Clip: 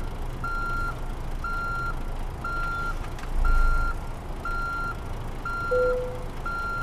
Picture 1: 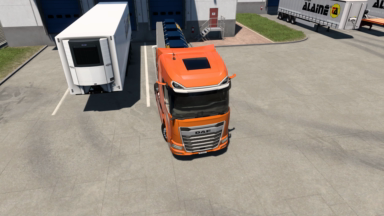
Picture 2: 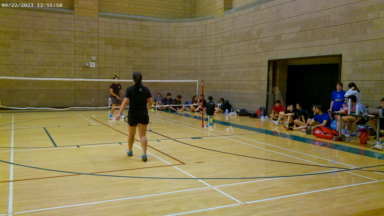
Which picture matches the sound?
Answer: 1